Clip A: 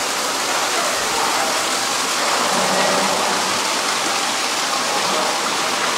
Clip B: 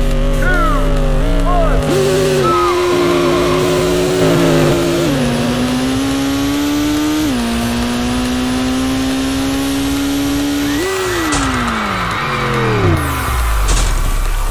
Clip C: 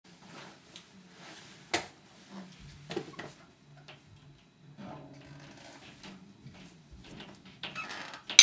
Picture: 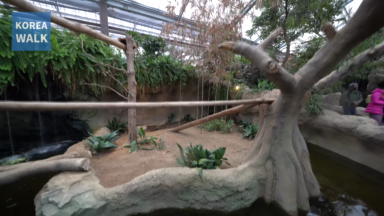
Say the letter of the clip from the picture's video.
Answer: A